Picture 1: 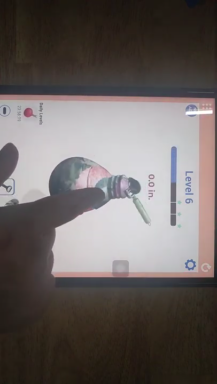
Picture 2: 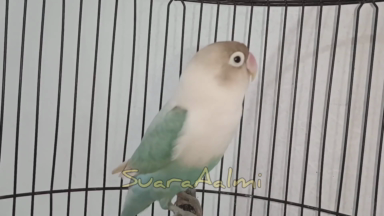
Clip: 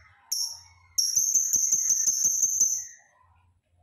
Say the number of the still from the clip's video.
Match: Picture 2